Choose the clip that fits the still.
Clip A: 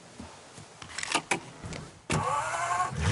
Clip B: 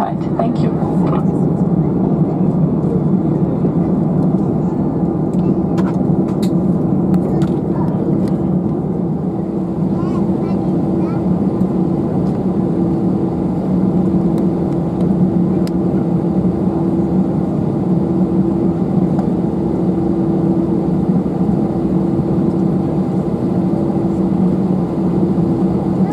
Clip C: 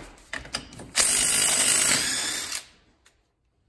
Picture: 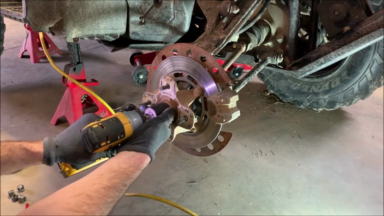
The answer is C